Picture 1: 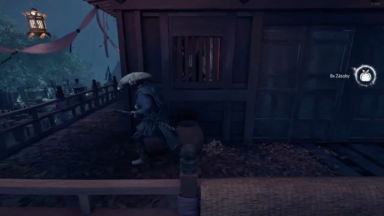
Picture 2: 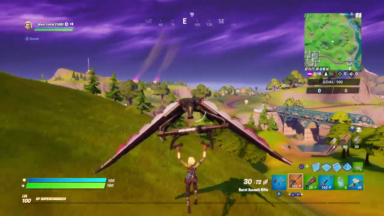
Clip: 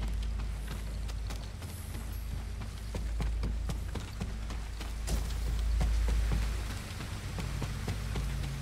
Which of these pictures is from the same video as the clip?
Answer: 1